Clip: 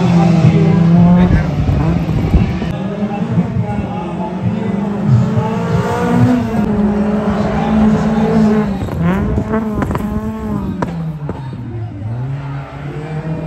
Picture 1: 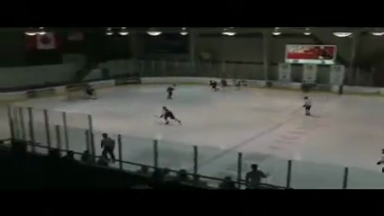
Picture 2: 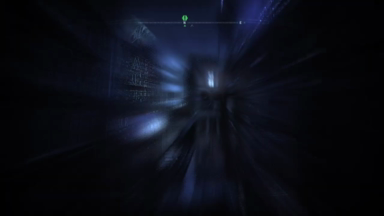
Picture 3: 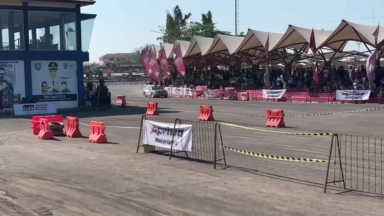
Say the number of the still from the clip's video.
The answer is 3